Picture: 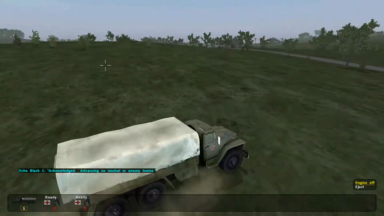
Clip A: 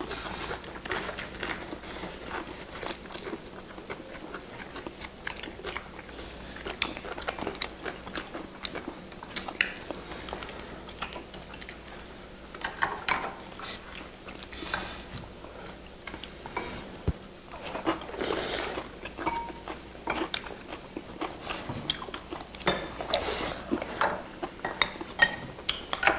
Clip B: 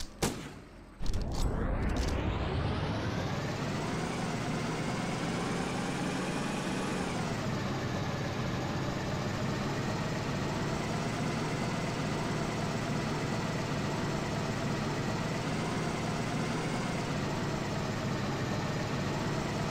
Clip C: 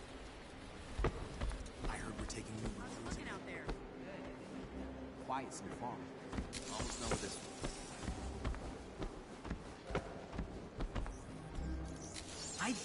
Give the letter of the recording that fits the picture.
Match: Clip B